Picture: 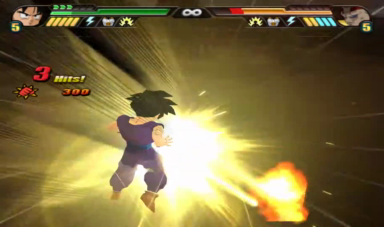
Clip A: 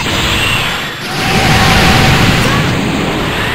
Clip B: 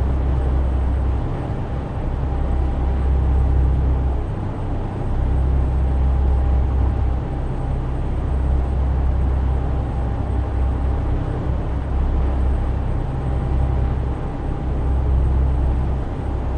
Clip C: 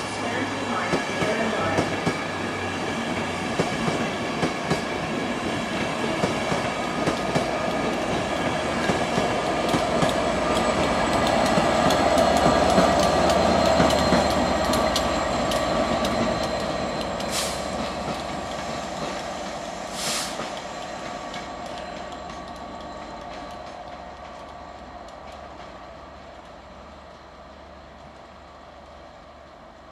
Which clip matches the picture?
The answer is A